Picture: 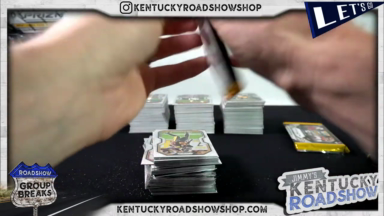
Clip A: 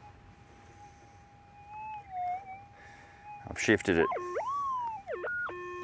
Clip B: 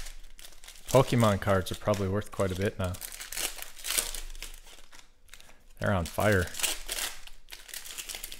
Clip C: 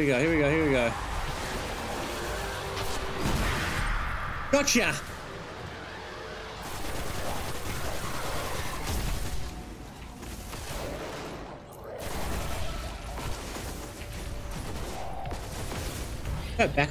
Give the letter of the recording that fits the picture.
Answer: B